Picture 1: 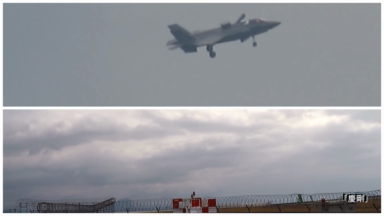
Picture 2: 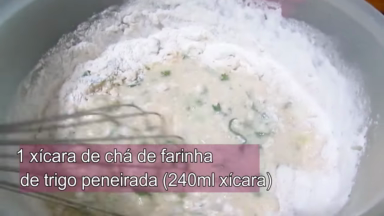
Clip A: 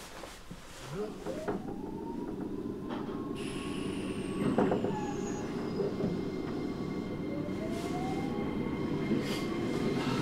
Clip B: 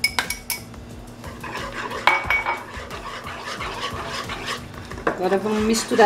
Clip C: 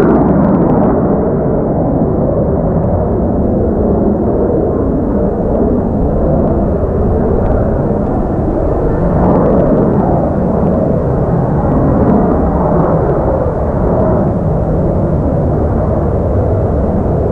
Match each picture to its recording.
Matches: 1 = C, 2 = B